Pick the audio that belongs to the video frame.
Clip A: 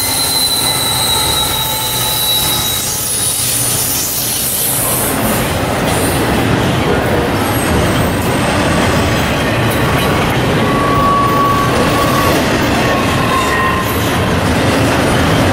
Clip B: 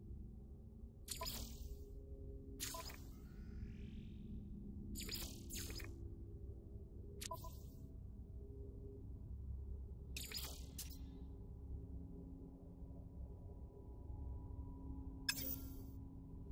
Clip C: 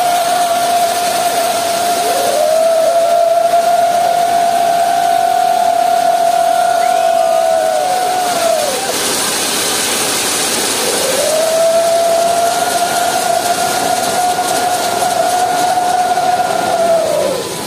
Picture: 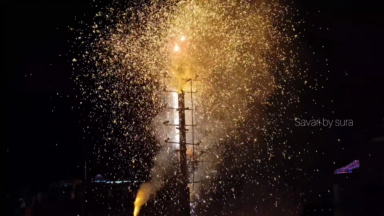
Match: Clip C